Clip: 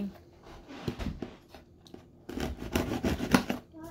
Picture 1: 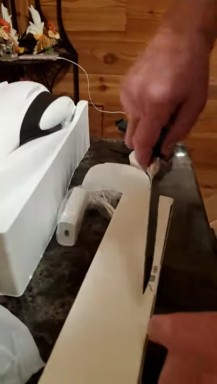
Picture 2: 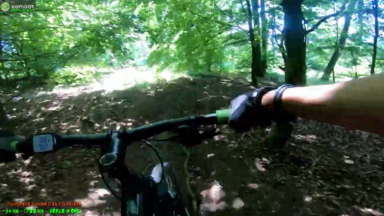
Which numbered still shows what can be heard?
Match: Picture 1